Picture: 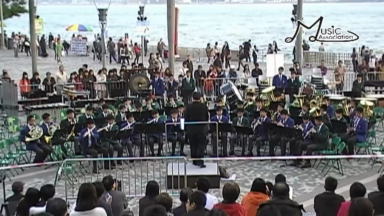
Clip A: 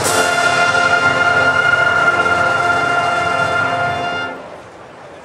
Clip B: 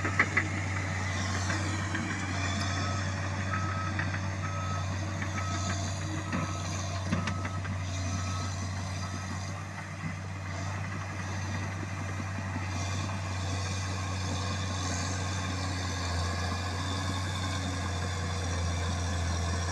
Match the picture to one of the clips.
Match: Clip A